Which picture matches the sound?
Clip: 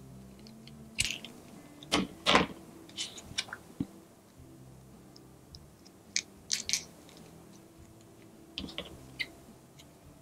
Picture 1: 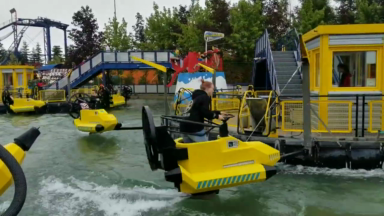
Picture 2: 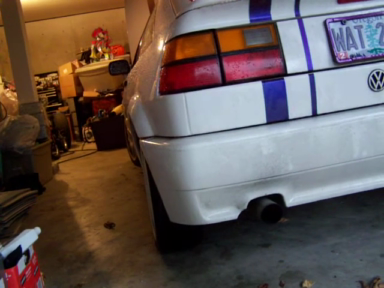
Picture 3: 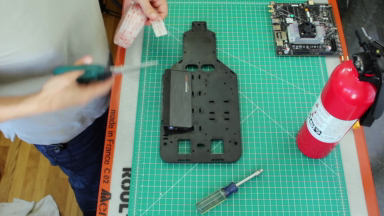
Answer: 3